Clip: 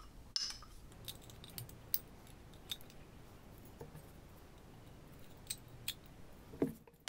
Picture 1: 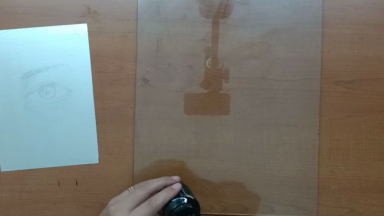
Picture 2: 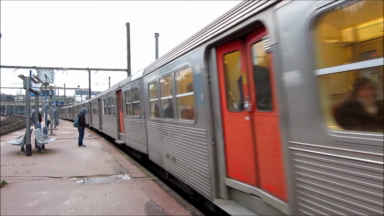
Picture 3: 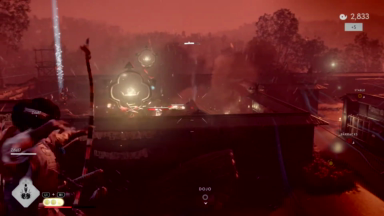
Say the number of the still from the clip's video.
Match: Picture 1